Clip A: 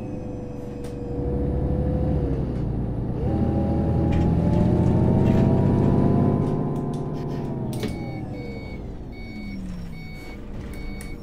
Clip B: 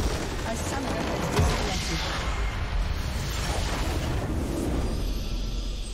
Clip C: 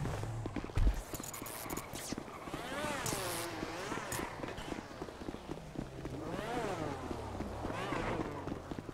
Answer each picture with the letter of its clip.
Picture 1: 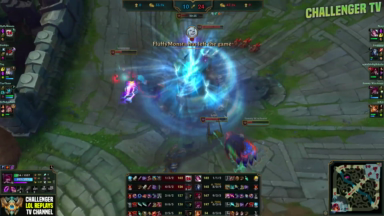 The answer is B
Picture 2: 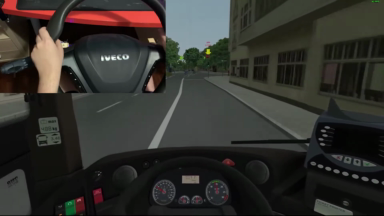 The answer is A